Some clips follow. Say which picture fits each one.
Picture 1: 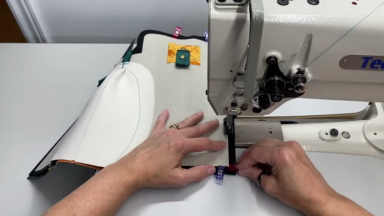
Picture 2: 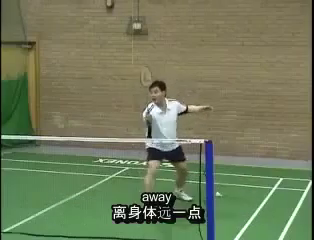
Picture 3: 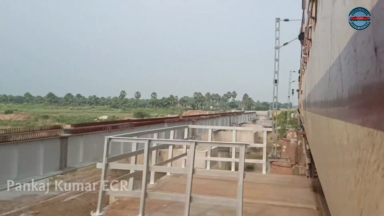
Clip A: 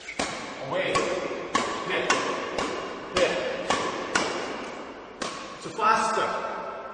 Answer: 2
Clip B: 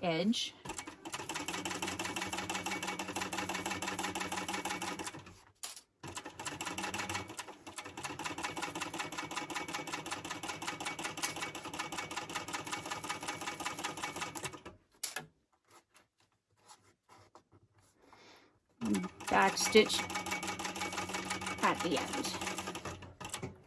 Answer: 1